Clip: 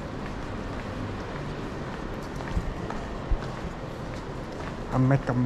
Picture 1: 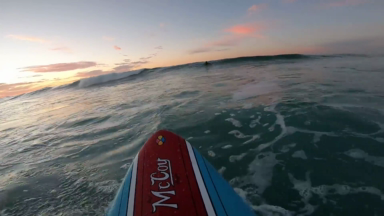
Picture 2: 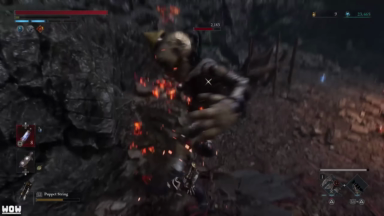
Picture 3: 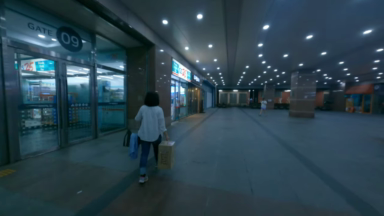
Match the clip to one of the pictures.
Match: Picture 3